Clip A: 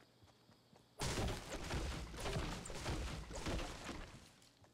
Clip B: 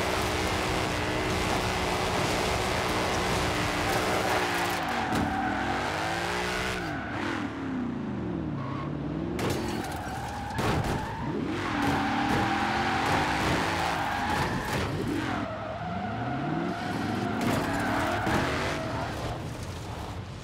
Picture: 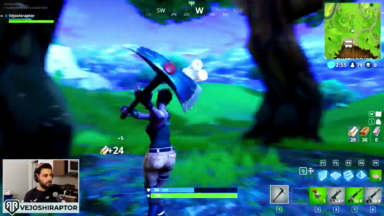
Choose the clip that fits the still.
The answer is A